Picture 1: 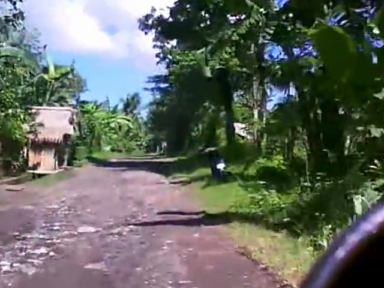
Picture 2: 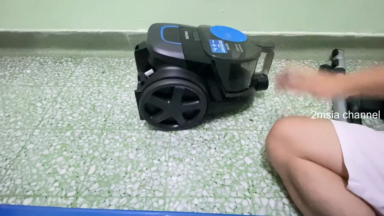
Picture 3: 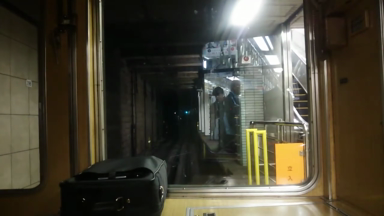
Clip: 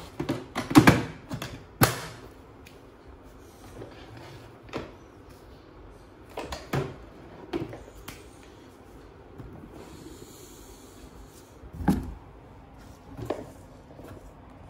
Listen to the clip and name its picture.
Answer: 2